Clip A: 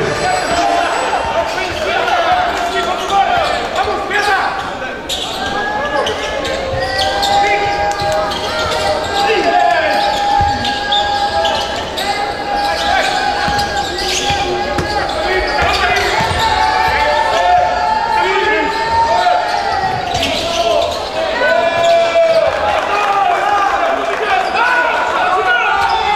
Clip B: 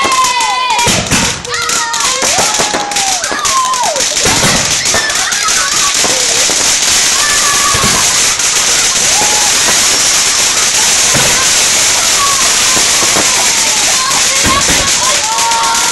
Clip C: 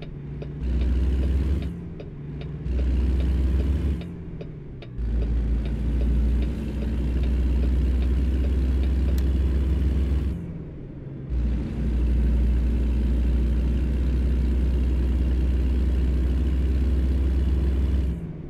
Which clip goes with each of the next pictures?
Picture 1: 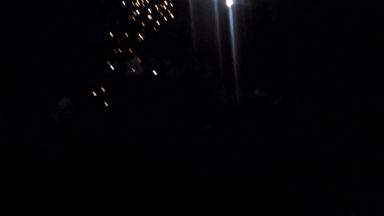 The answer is B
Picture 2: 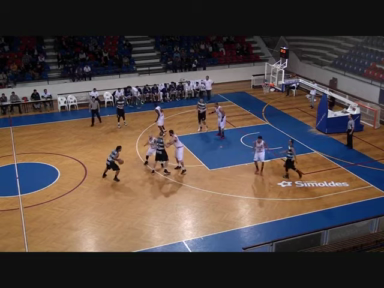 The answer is A